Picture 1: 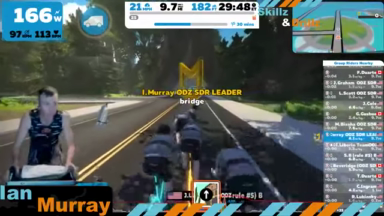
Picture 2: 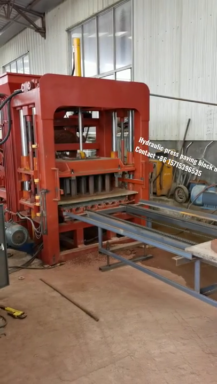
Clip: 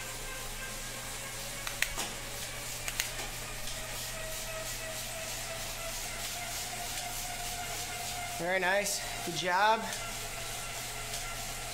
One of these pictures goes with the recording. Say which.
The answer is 1